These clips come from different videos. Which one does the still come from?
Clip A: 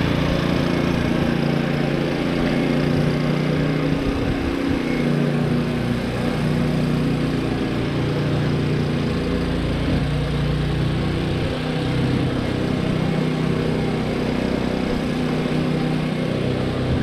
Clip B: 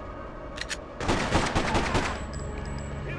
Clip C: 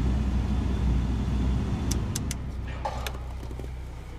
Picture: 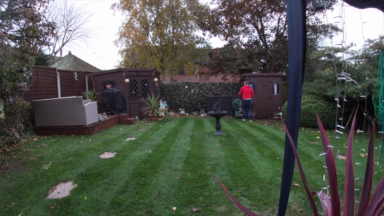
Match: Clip A